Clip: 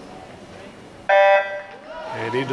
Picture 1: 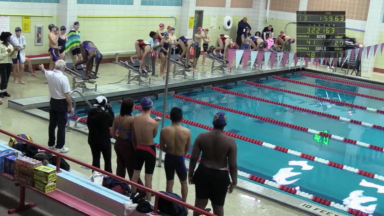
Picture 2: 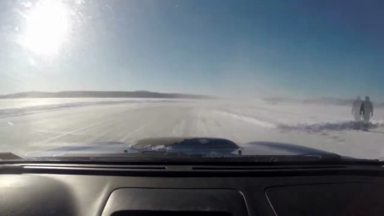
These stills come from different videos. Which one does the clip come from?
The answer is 1